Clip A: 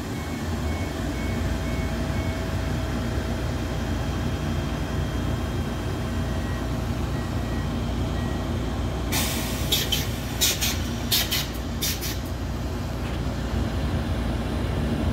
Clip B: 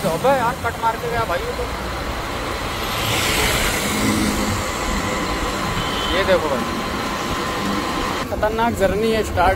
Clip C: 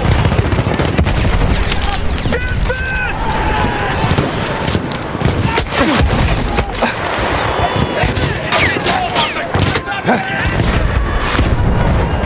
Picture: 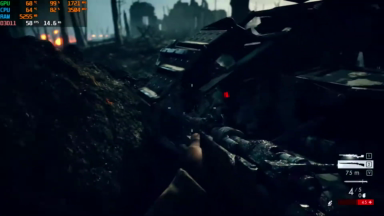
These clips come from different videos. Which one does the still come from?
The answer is C